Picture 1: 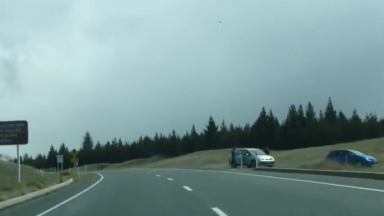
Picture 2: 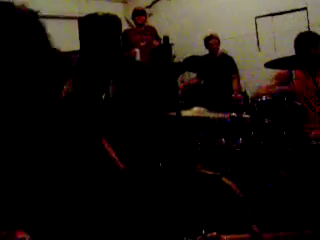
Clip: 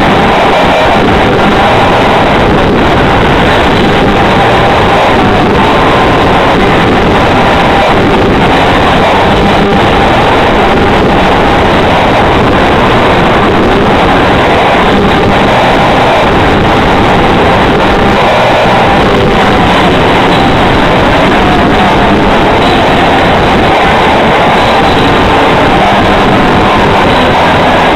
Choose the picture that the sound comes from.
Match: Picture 2